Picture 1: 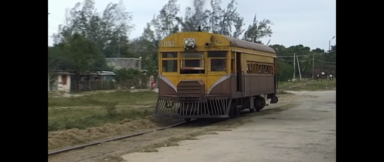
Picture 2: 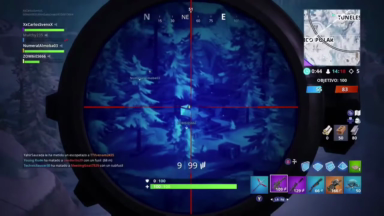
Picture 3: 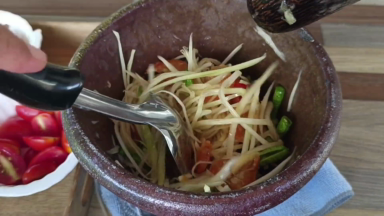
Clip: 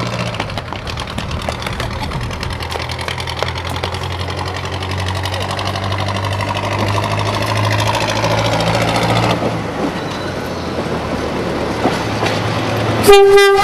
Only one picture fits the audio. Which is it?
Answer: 1